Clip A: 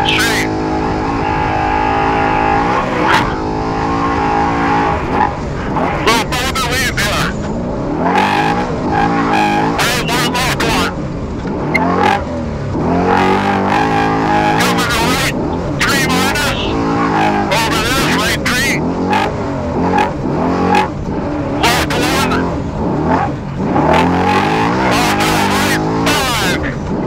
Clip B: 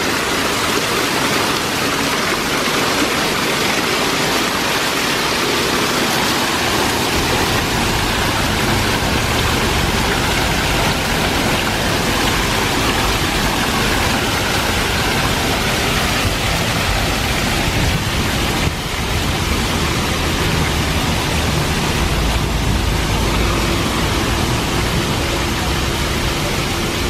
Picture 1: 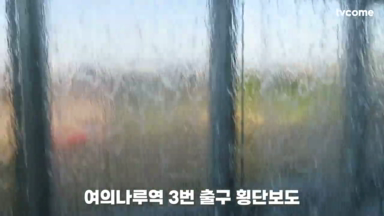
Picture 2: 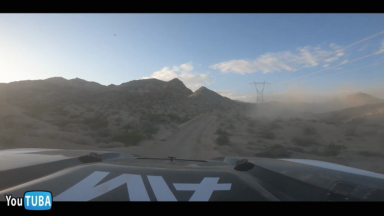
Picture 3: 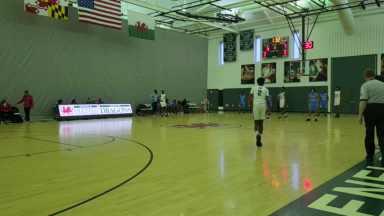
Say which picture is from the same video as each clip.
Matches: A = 2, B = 1